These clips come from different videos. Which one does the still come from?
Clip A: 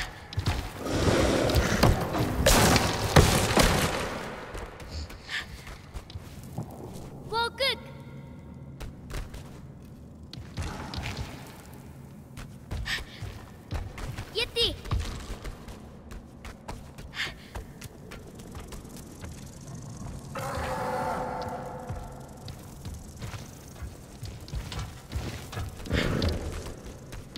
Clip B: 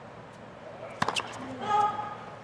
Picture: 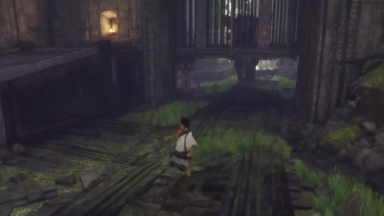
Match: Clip A